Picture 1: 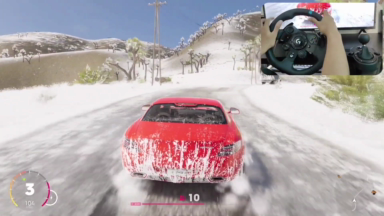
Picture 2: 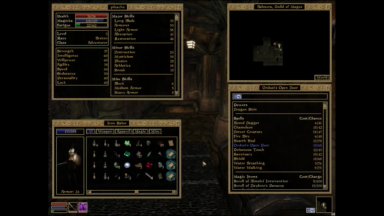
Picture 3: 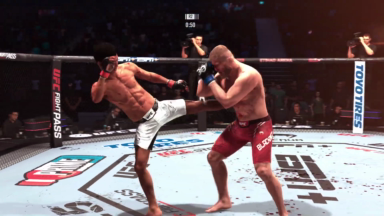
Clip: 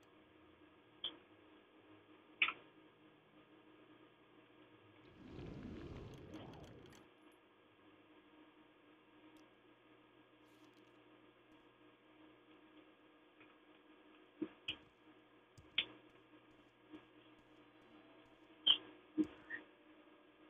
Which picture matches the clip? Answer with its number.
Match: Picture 2